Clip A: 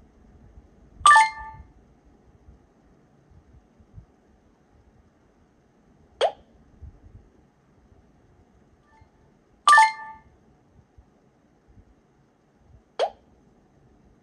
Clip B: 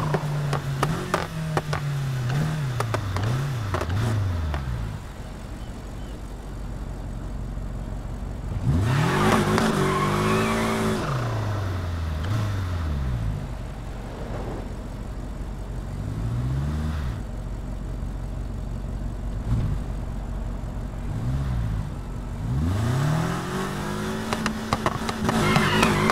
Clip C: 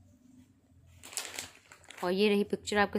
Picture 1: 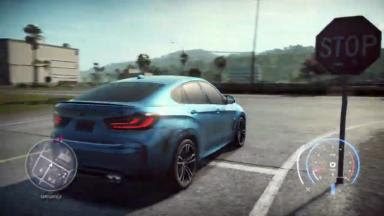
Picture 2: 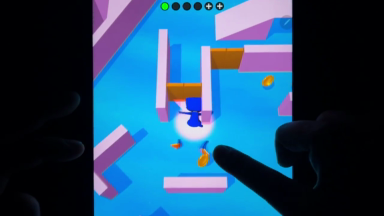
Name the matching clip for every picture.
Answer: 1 B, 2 A